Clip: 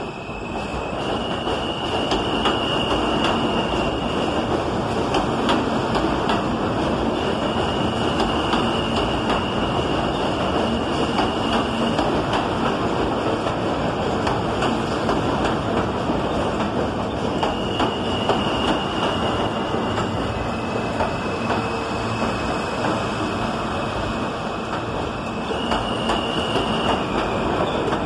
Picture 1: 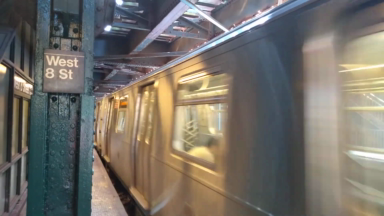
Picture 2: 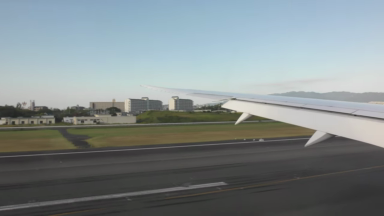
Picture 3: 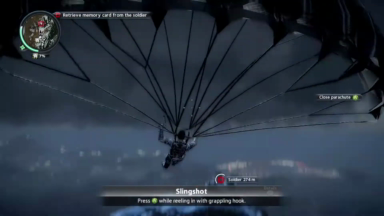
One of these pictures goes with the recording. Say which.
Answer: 1